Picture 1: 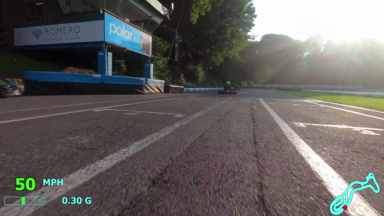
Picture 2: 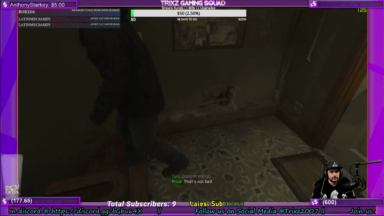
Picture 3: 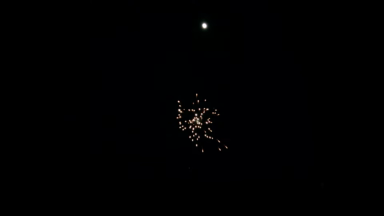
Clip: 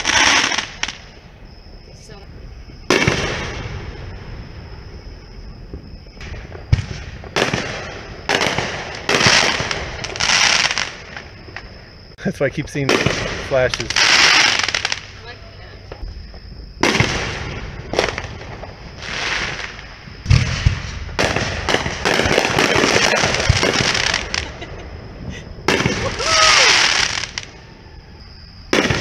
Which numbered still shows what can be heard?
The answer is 3